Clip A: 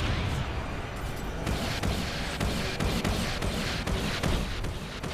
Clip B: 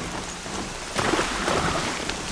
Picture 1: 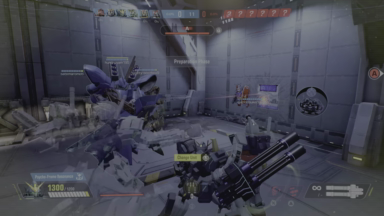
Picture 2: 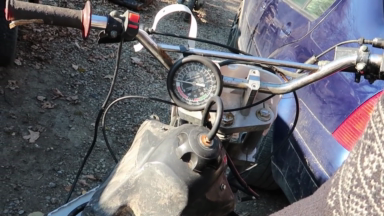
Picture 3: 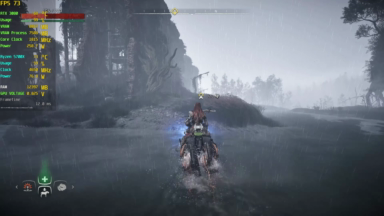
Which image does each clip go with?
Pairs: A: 1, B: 3